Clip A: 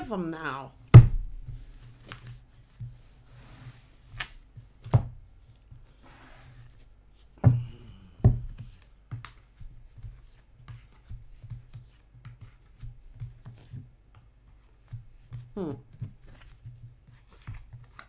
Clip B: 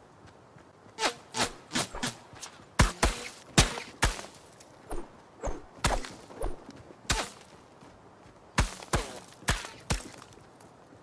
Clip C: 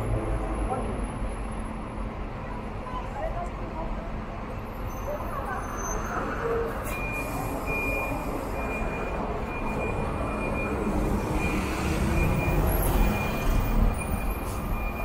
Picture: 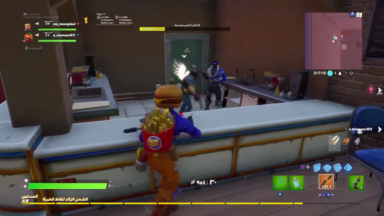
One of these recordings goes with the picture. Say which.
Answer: B